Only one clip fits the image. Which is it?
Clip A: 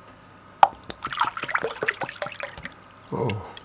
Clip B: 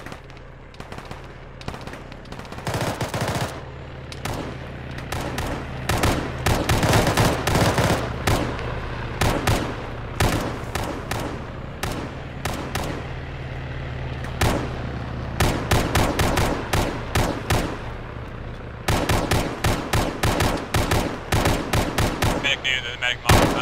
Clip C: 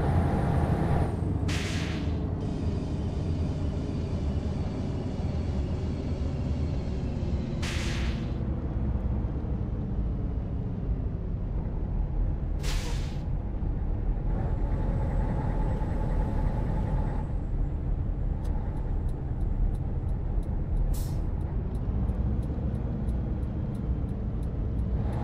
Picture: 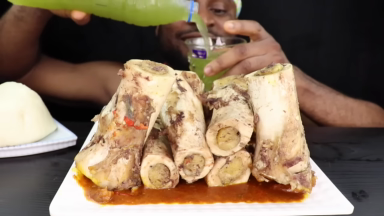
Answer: A